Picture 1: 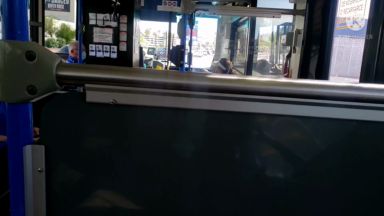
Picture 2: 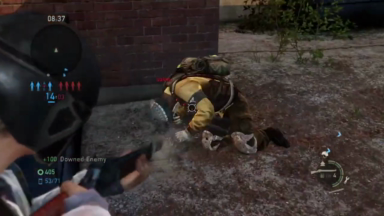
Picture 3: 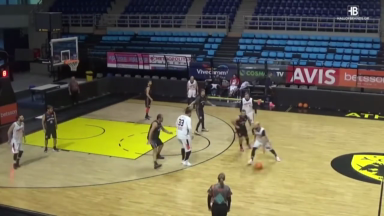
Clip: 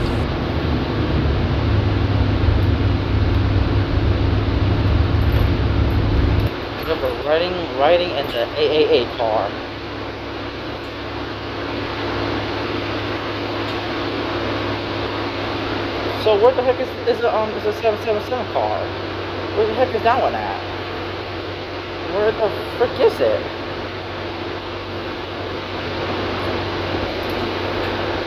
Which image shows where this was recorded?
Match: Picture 1